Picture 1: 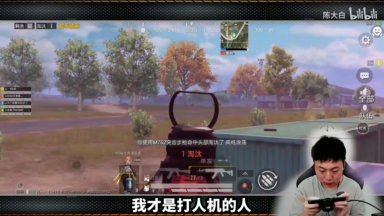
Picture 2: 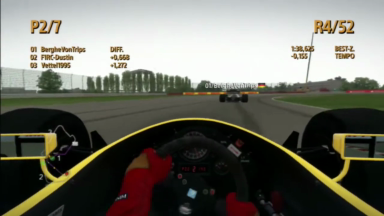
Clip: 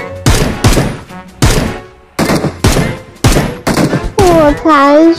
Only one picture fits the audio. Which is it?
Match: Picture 1